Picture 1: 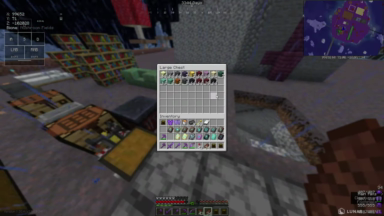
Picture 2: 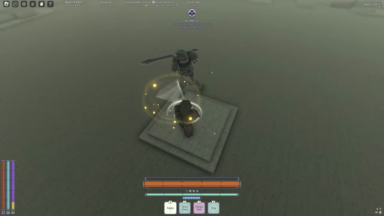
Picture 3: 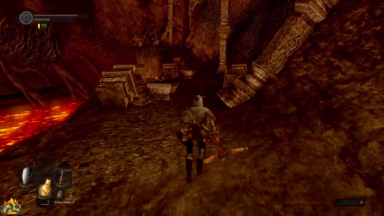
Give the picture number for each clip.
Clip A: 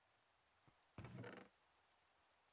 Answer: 1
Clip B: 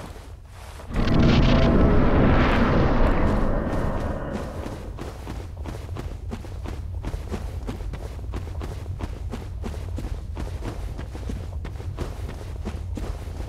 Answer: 3